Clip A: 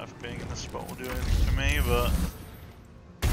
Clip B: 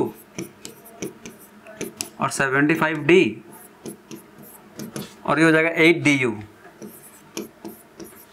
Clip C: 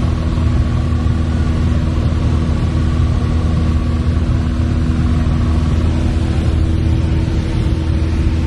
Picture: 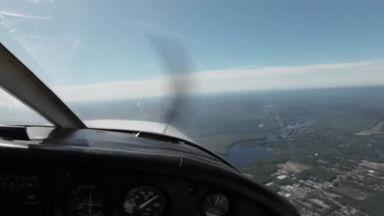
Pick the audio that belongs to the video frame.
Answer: C